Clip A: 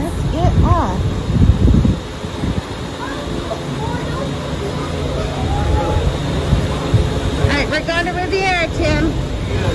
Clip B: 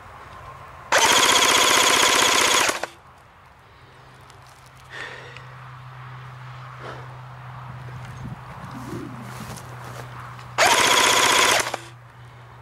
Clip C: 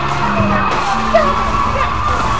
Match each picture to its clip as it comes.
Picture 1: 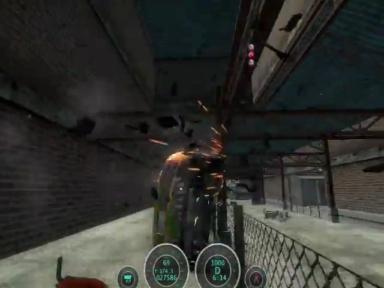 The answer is C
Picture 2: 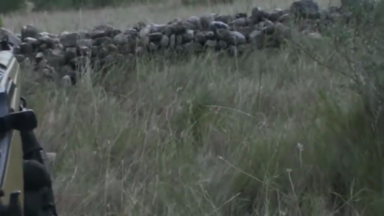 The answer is B